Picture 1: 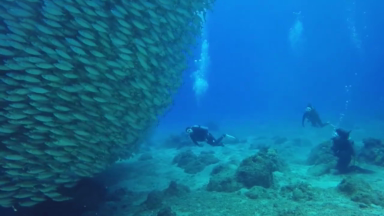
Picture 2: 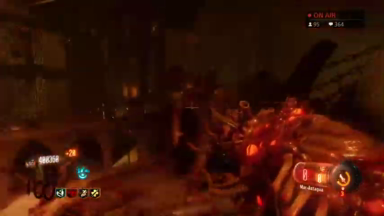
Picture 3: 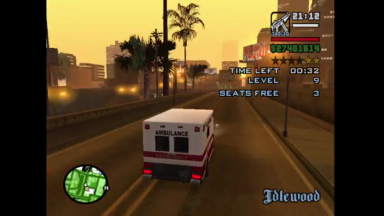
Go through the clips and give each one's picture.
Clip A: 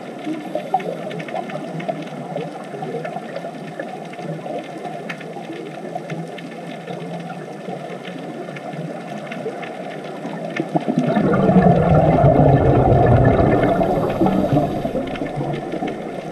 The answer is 1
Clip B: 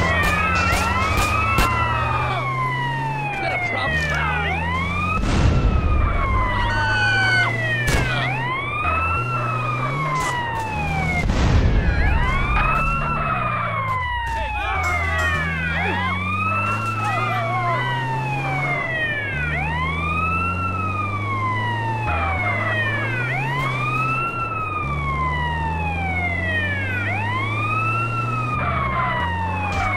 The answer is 3